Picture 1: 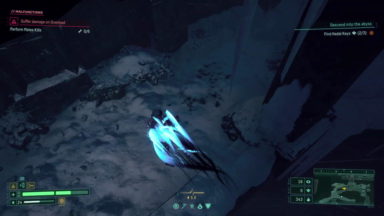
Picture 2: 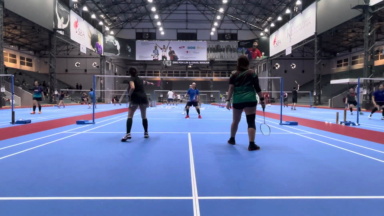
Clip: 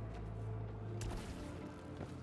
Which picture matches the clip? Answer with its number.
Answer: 1